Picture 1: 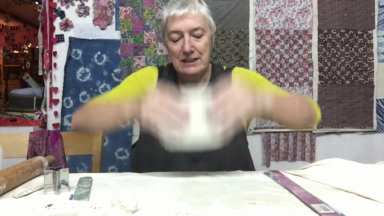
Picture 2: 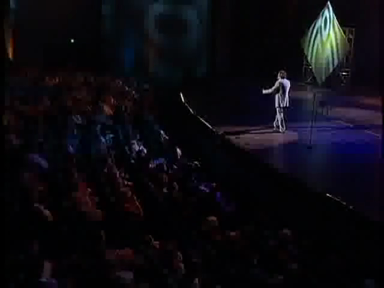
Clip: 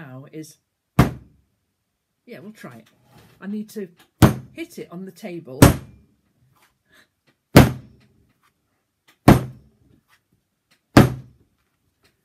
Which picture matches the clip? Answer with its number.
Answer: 1